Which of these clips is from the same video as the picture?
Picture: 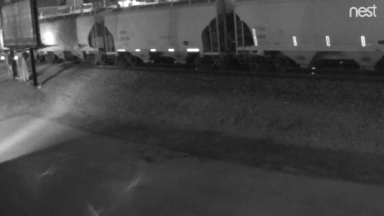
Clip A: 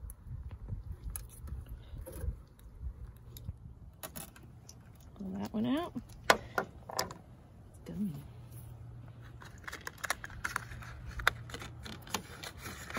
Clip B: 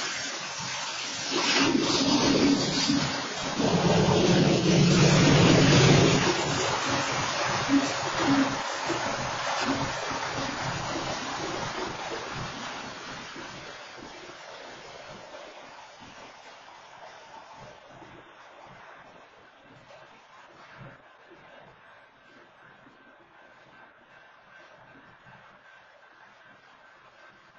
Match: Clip B